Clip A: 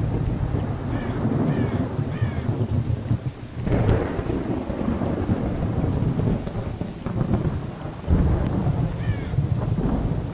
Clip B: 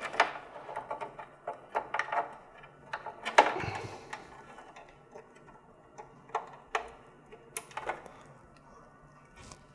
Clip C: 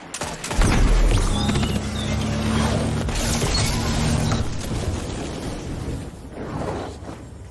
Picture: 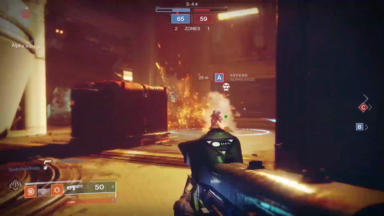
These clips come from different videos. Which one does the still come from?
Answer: C